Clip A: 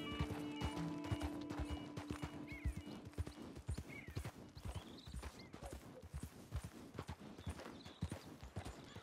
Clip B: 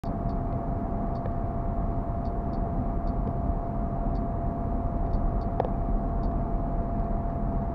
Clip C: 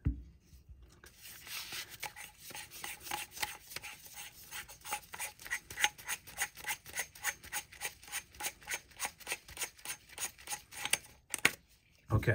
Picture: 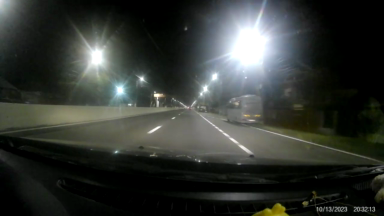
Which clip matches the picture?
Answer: B